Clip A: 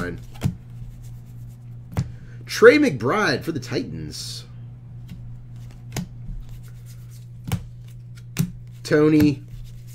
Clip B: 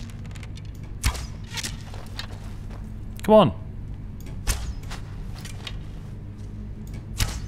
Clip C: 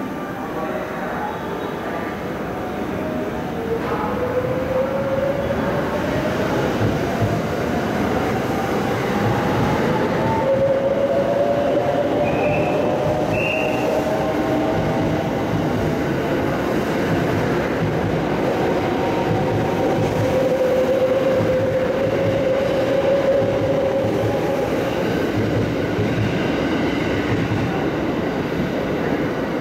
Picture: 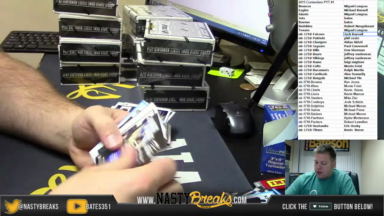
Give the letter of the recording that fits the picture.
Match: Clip A